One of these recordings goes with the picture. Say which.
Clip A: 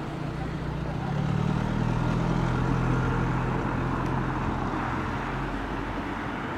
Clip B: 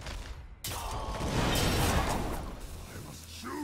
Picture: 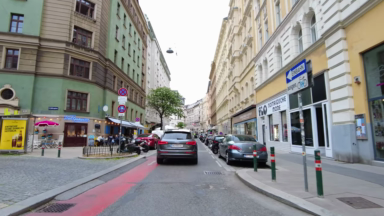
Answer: A